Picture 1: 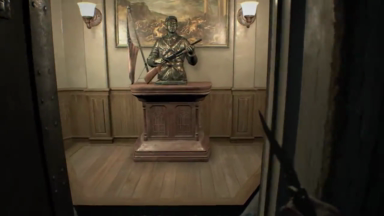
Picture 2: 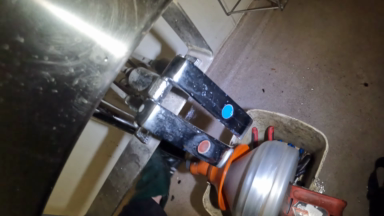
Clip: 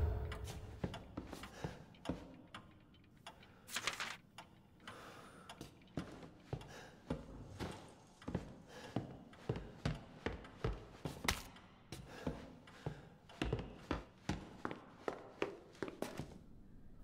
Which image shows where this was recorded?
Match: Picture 1